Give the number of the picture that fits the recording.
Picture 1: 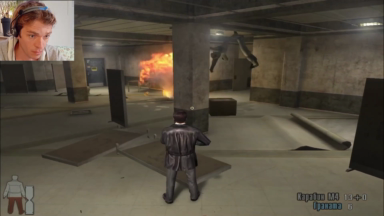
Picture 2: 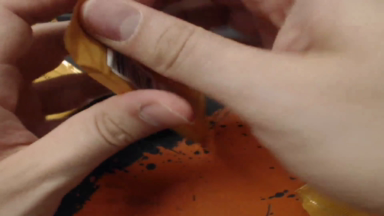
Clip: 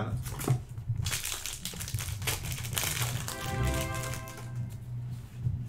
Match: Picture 2